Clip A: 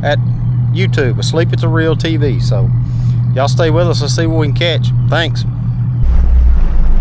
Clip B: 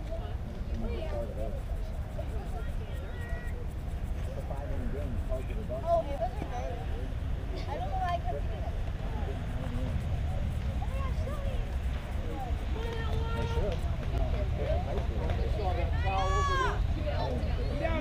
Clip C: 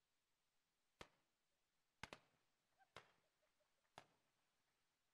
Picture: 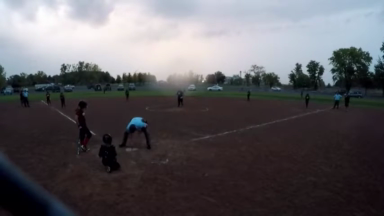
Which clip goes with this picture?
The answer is B